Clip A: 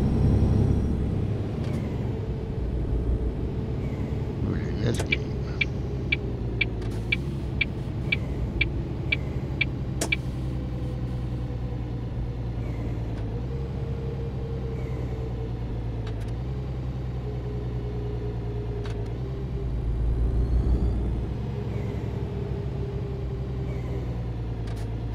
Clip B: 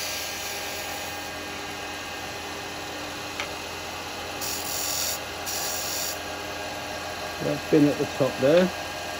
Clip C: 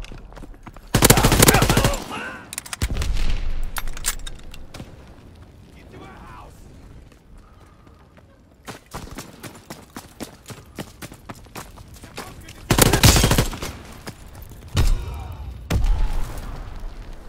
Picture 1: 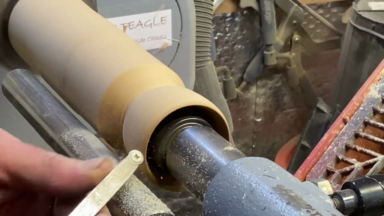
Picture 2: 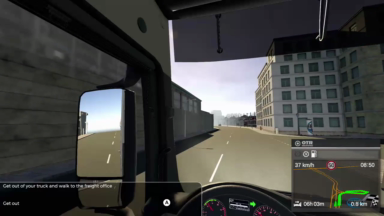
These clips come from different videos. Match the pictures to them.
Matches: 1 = B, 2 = A